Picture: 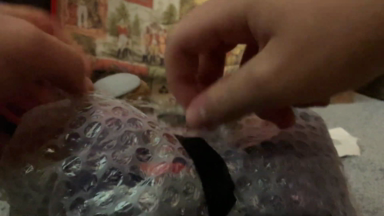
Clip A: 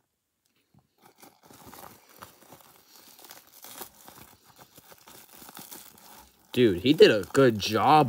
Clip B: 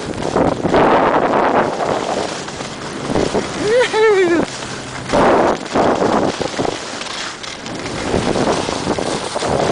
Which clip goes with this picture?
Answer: A